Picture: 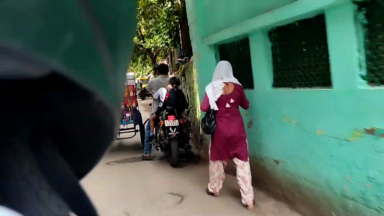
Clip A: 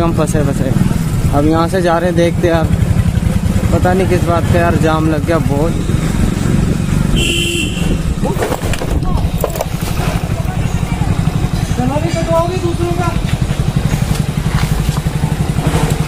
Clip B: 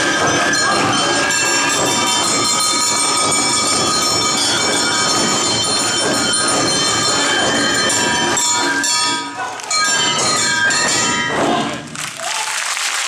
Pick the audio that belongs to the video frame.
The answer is A